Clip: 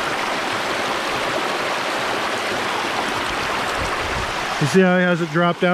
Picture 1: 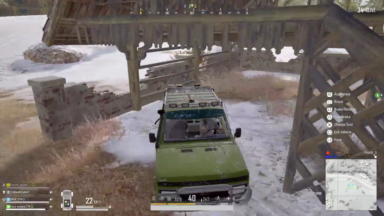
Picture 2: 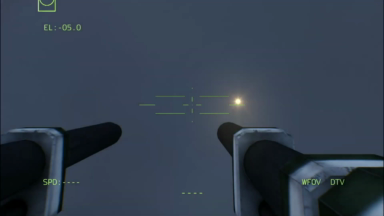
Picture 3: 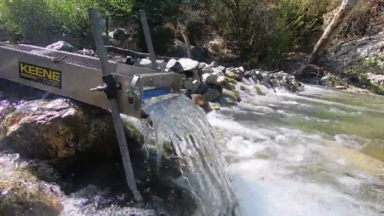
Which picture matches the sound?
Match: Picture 3